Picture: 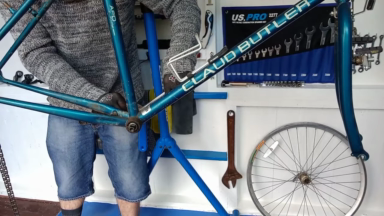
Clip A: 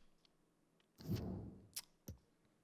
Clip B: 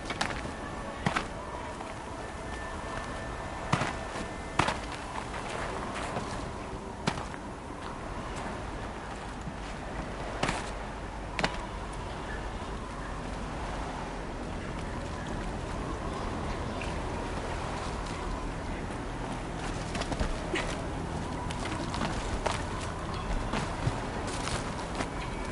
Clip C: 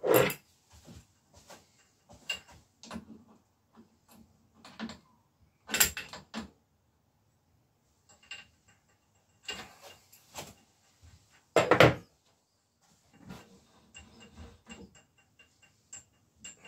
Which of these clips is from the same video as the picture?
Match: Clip C